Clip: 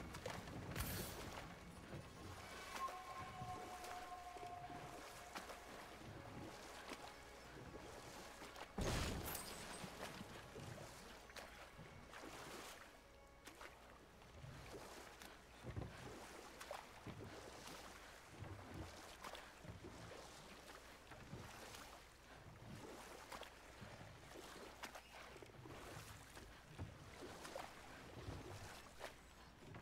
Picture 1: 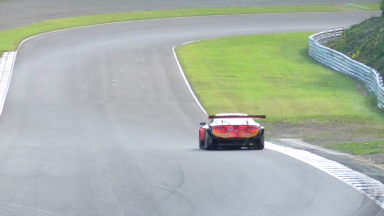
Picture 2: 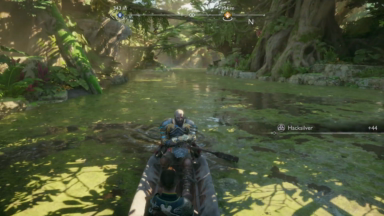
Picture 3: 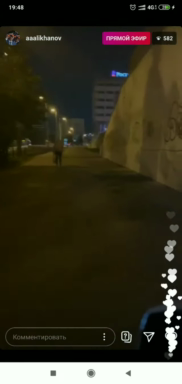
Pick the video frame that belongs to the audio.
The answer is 2